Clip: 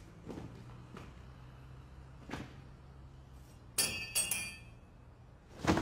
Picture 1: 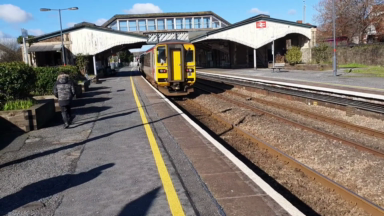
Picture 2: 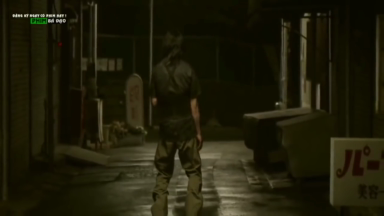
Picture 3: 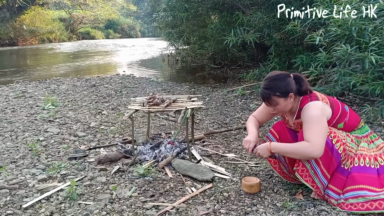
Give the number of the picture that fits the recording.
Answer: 2